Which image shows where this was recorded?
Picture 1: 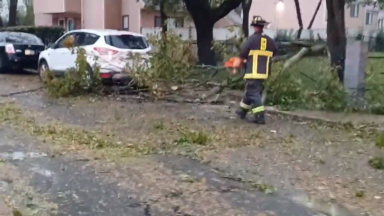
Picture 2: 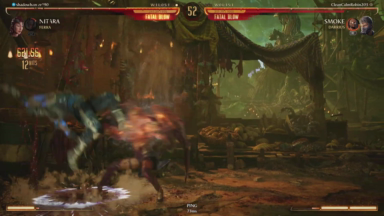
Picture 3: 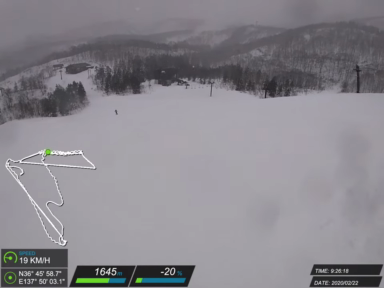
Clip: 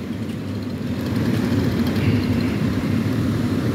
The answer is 1